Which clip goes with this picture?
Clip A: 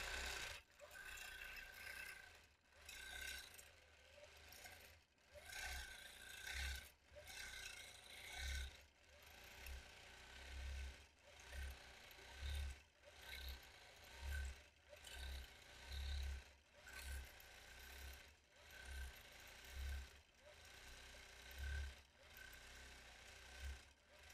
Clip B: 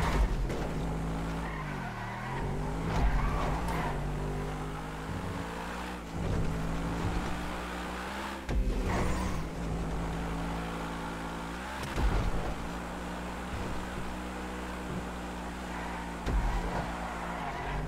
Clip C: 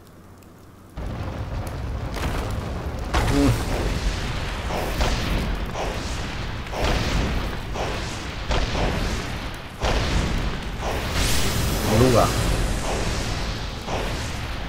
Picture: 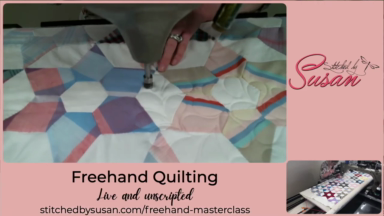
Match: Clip A